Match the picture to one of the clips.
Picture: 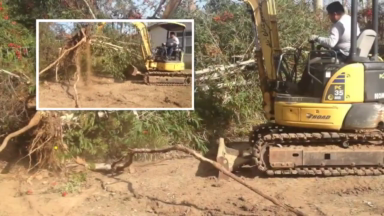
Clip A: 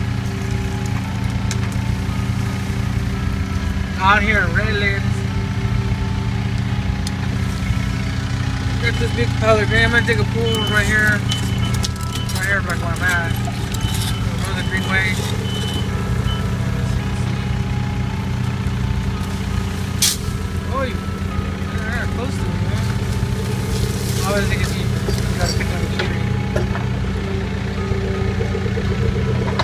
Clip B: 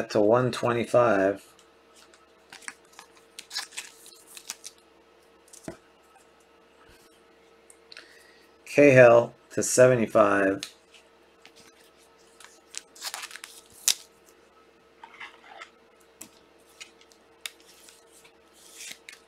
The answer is A